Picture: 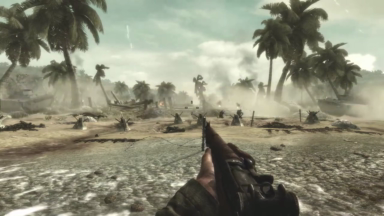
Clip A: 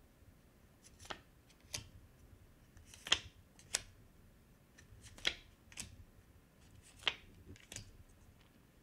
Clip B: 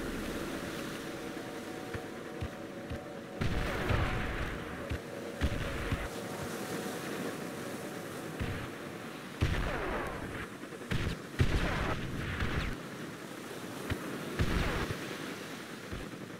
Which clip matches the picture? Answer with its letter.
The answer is B